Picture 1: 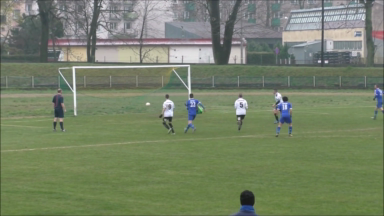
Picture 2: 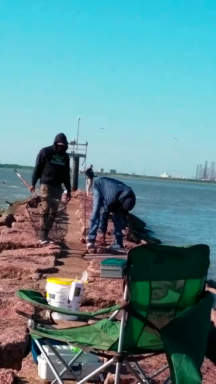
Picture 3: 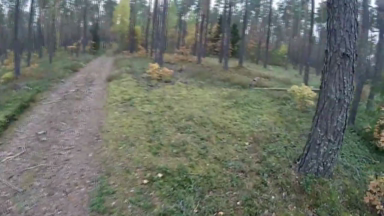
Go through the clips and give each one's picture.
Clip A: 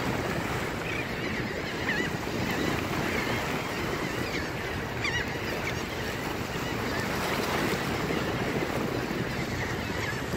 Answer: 2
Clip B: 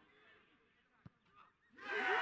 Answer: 1